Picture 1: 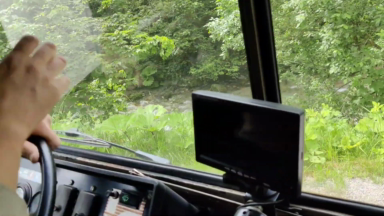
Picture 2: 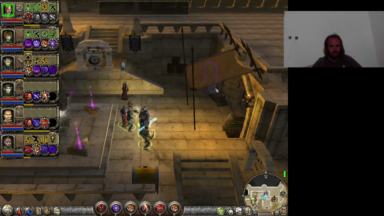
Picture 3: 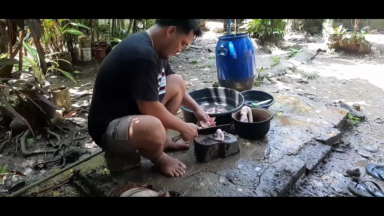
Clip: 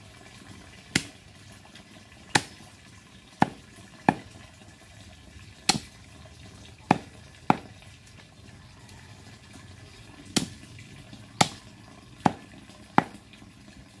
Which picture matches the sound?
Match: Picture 3